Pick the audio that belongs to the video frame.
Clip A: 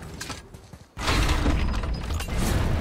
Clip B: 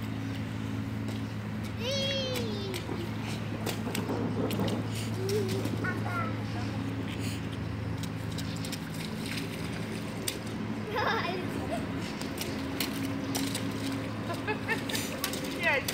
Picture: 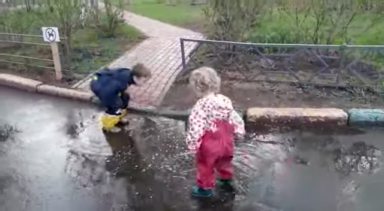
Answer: B